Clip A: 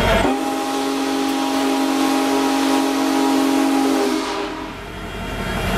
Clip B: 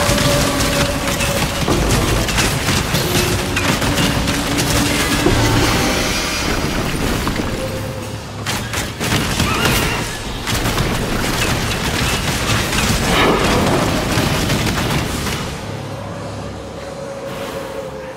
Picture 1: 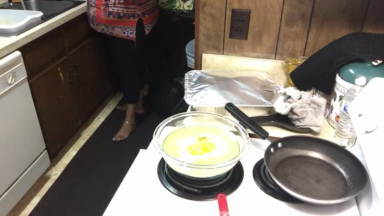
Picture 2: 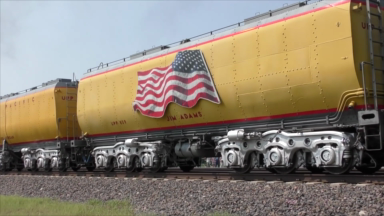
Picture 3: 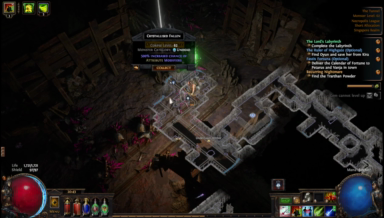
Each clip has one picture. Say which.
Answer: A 2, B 3